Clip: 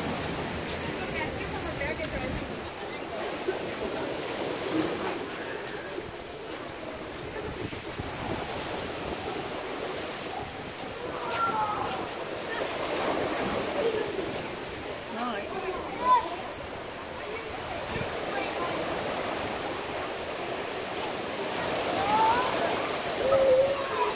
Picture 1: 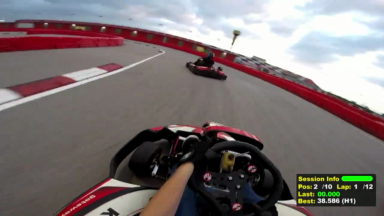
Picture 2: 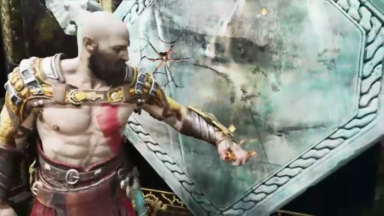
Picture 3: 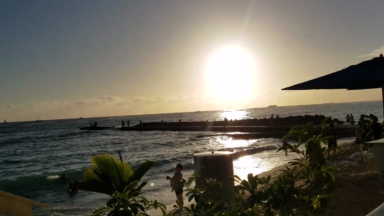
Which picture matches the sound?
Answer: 3